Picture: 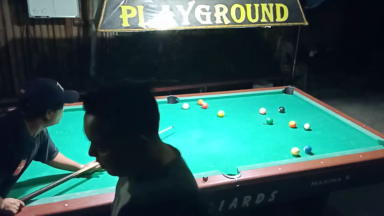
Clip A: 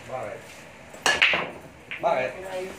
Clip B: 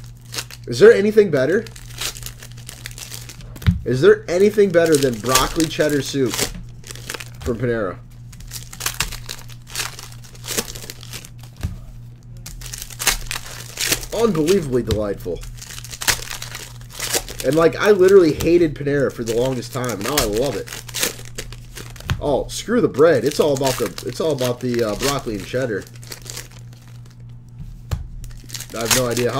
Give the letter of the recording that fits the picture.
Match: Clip A